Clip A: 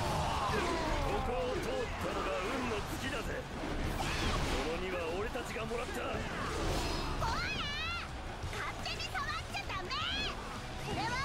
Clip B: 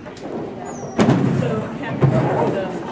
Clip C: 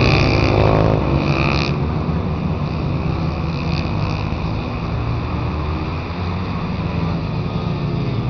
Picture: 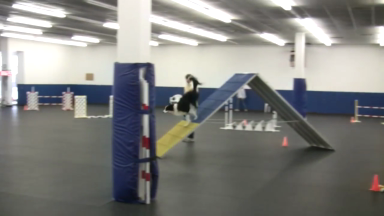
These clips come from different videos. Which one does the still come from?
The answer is B